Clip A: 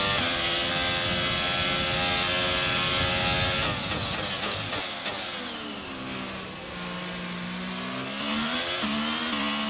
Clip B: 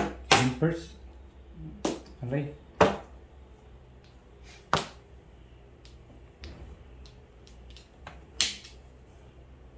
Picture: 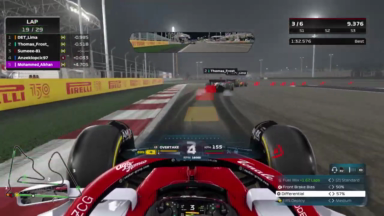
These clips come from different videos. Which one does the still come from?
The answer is A